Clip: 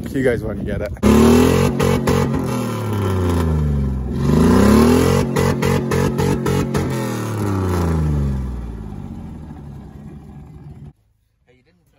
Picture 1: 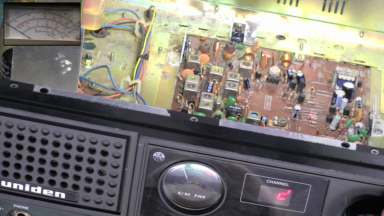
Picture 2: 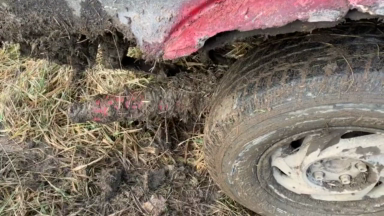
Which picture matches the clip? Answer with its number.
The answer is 2